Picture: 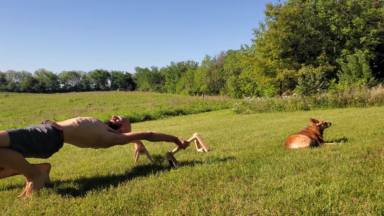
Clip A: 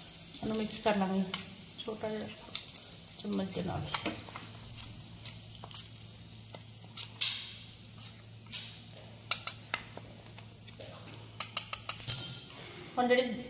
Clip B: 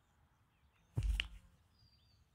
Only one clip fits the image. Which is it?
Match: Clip B